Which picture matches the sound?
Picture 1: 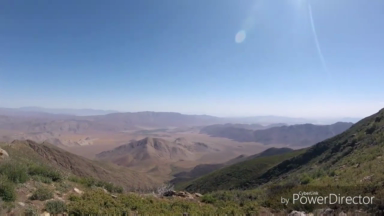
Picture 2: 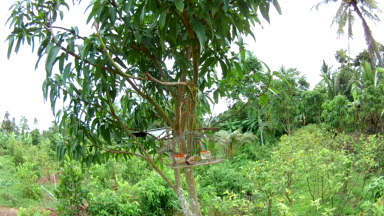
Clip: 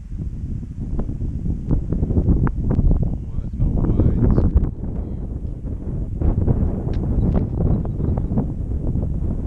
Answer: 1